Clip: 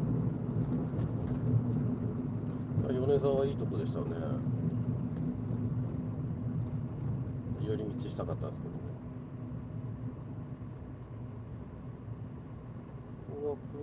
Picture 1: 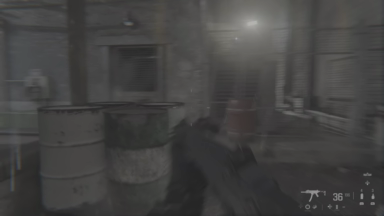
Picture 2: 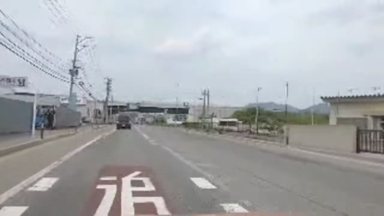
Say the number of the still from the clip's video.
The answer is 2